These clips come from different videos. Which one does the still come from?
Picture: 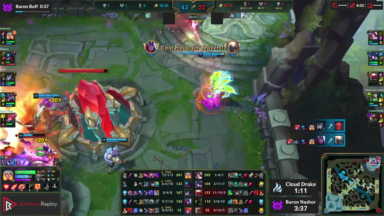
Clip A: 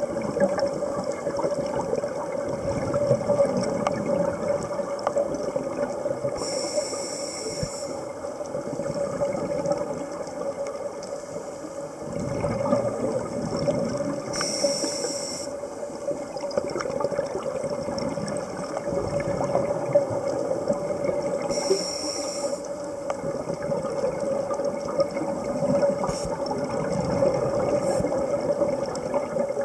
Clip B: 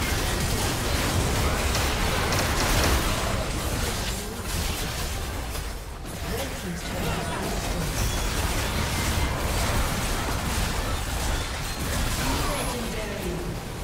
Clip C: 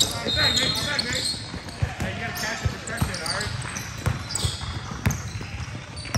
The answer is B